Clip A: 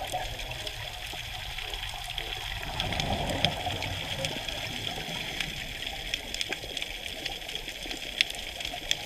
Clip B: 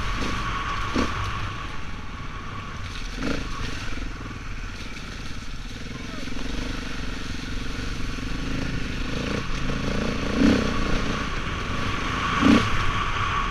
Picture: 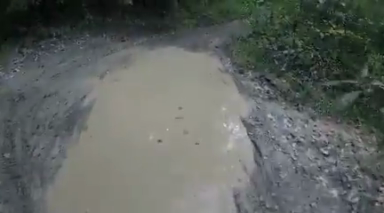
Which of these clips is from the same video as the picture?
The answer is B